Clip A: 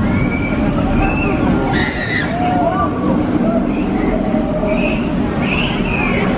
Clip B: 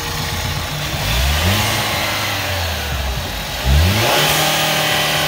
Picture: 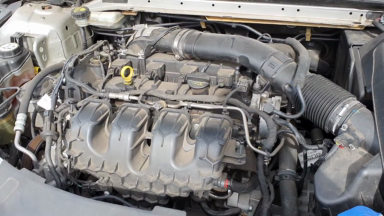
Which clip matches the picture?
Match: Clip B